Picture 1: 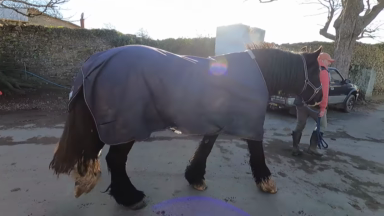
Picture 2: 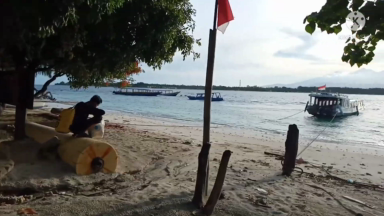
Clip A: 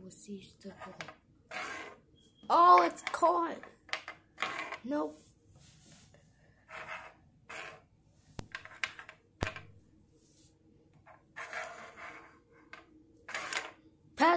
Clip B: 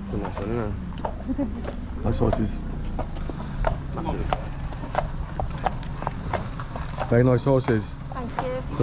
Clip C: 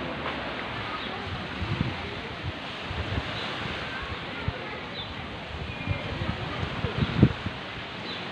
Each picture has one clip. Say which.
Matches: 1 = B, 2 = C